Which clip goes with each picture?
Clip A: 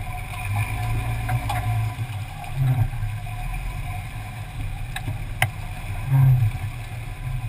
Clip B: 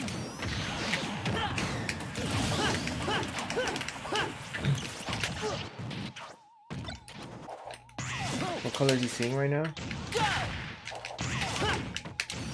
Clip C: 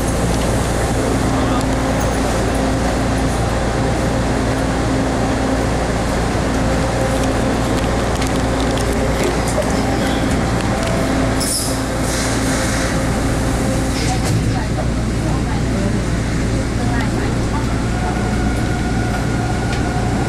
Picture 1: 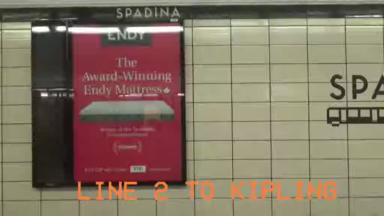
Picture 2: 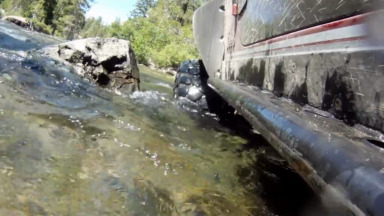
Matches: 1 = C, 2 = A